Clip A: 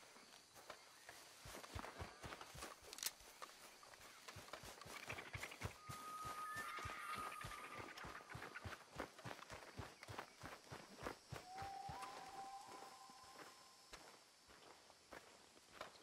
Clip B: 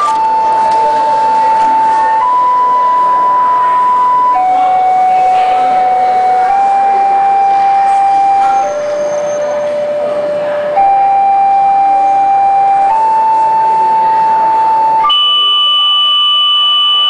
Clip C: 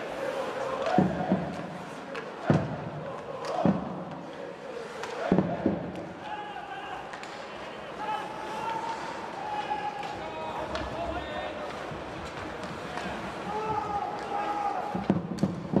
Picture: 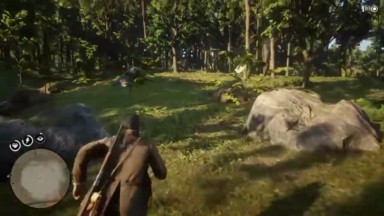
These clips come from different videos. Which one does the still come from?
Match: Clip A